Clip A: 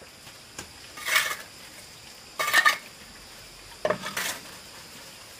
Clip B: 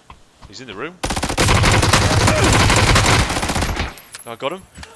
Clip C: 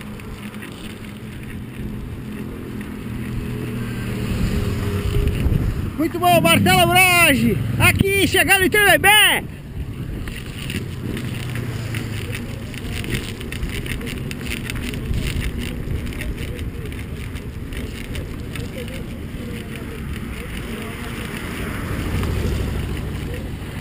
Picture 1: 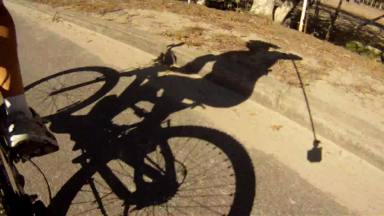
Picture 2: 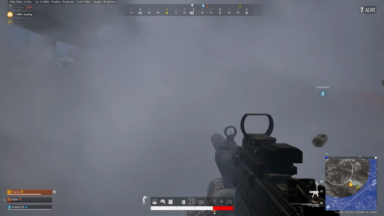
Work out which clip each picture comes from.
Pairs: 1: C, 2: B